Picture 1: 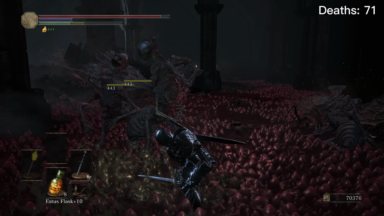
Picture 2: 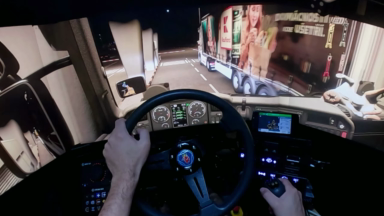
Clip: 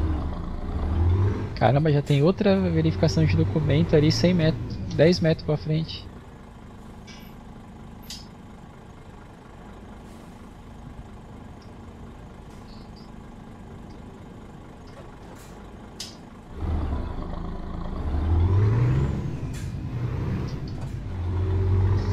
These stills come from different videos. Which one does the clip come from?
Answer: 2